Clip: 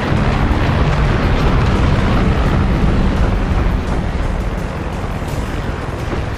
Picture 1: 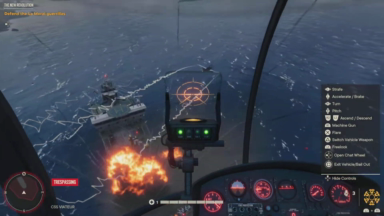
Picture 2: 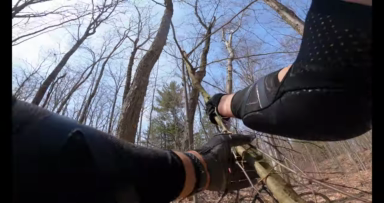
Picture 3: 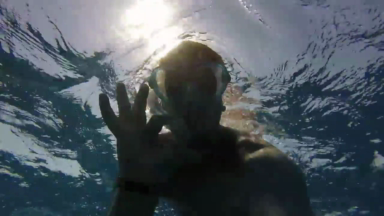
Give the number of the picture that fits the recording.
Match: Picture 1